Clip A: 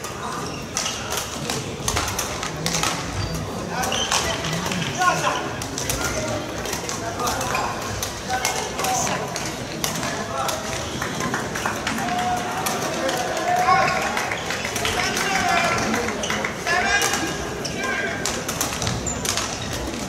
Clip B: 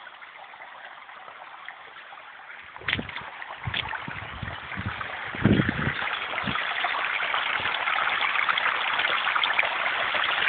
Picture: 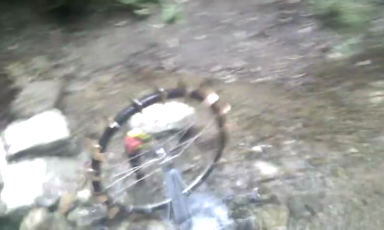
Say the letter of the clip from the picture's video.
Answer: B